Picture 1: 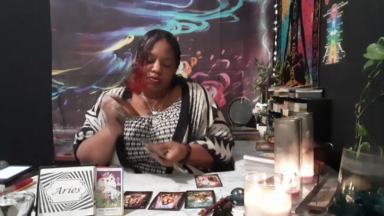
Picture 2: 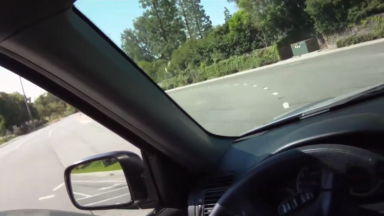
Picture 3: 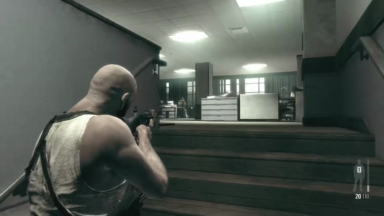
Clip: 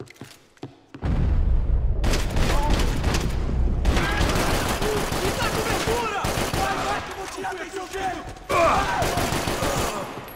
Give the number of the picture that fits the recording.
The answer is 3